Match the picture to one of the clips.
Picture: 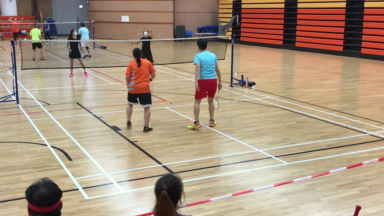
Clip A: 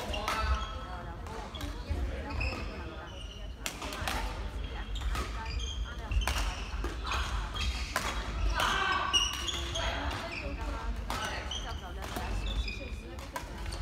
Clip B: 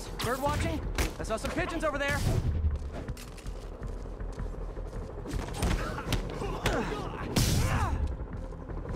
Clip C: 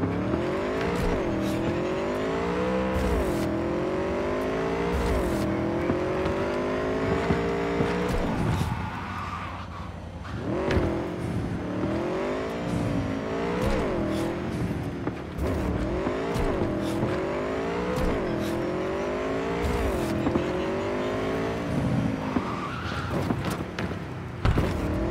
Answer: A